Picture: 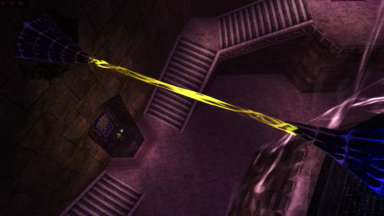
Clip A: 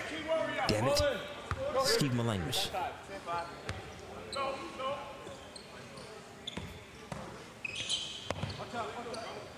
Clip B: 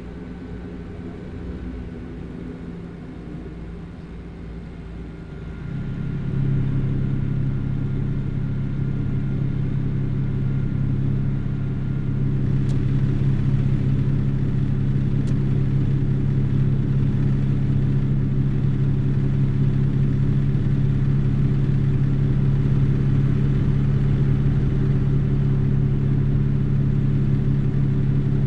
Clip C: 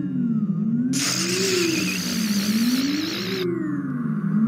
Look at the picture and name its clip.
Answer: C